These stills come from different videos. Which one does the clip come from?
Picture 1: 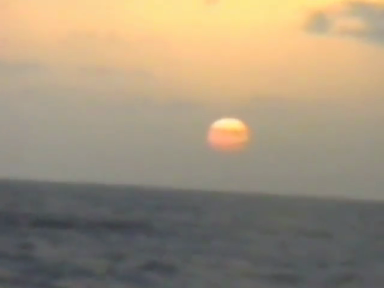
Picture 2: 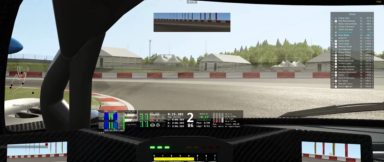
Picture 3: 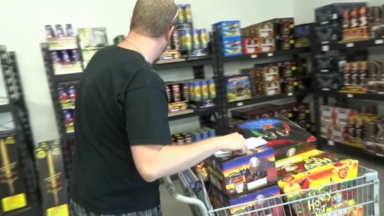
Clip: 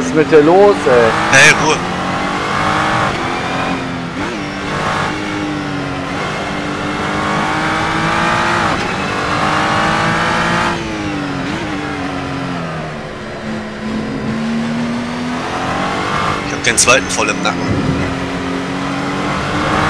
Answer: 2